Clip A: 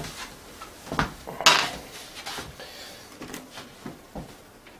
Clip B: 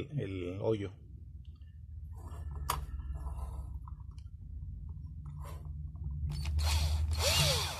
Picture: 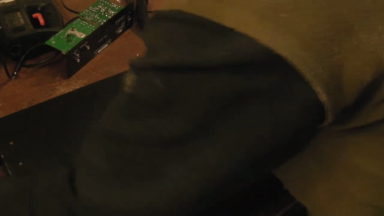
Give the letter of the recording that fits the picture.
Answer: A